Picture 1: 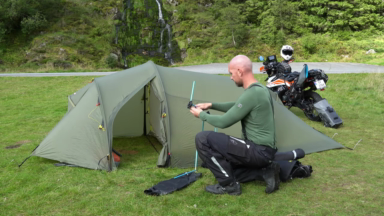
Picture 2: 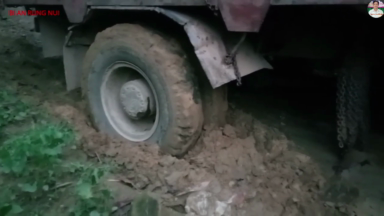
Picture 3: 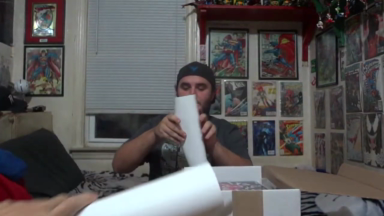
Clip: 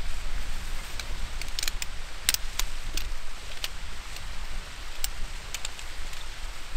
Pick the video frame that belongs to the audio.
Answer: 1